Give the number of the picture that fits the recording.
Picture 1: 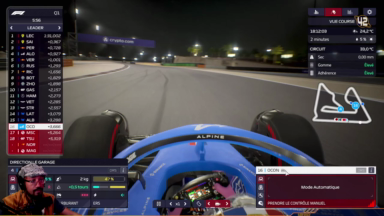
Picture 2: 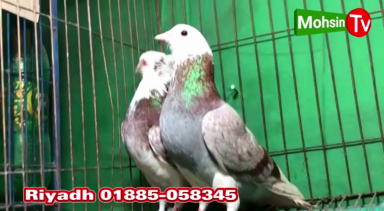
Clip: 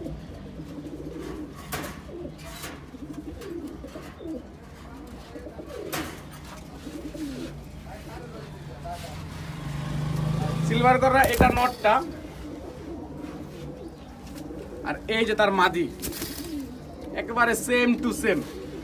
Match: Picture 2